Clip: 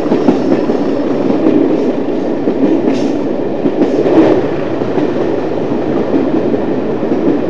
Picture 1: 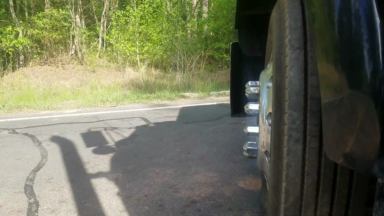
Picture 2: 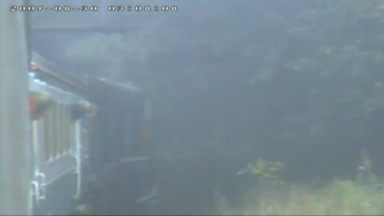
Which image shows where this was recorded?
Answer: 2